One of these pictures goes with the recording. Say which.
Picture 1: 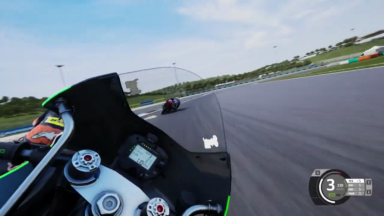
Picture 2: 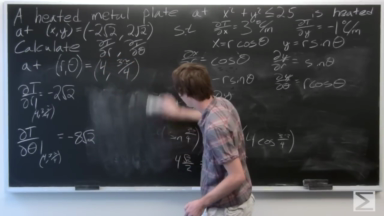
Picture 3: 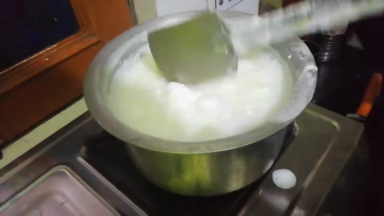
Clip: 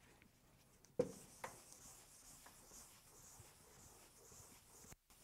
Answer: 2